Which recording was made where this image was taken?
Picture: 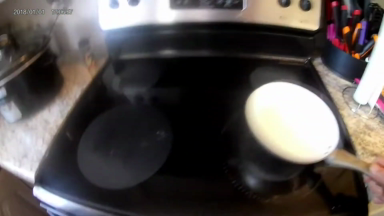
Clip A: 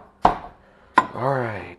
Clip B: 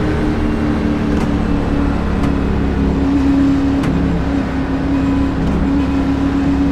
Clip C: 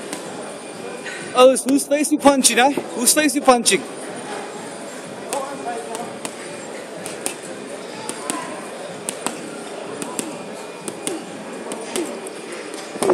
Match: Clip A